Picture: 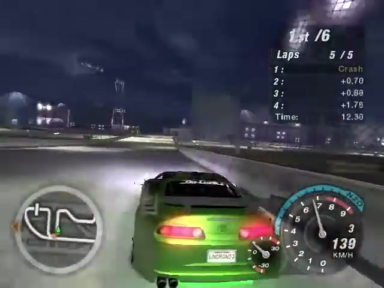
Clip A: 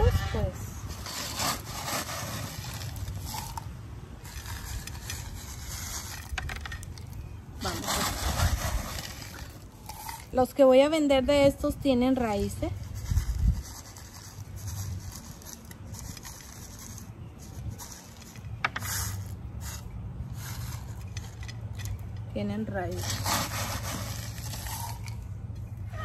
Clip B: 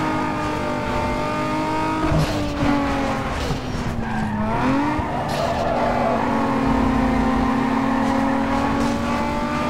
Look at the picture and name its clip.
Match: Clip B